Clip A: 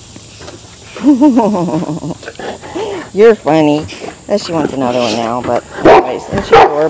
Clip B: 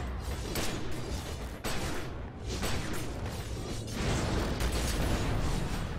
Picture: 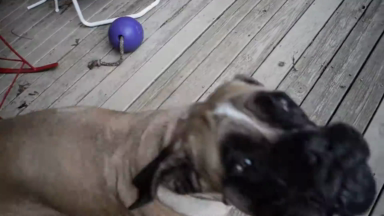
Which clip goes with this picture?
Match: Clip A